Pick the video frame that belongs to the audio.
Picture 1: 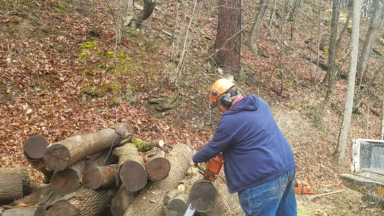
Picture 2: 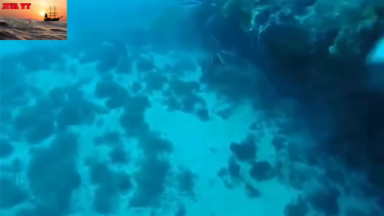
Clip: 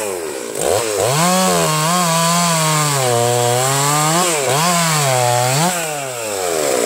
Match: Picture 1